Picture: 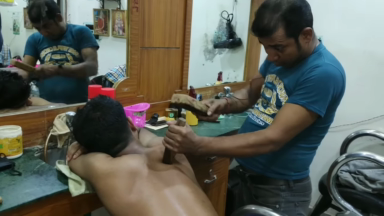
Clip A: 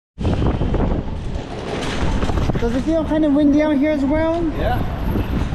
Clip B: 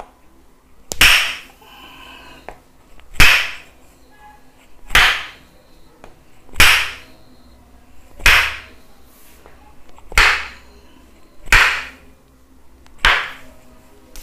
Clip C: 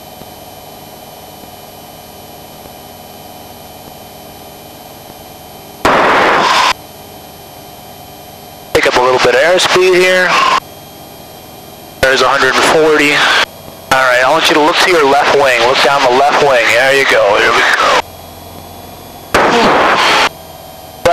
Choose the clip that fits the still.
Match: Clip B